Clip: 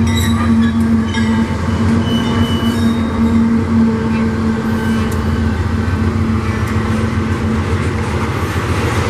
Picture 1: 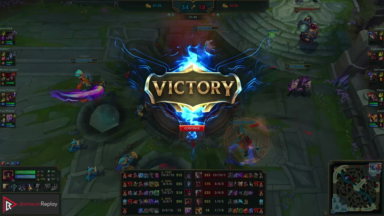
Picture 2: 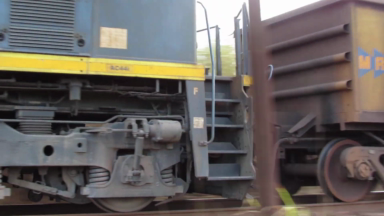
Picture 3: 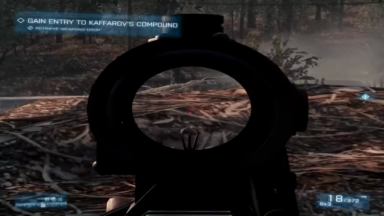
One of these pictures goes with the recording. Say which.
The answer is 2